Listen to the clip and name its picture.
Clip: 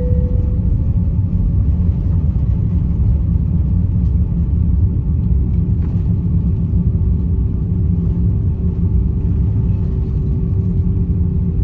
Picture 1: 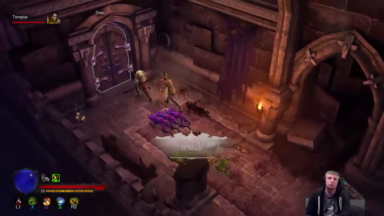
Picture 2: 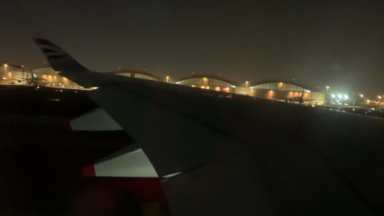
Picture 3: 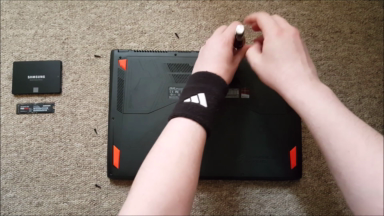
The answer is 2